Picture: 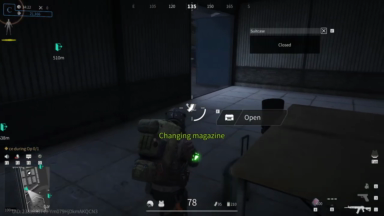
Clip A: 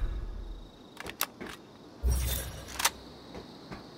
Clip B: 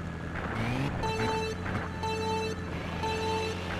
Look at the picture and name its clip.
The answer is A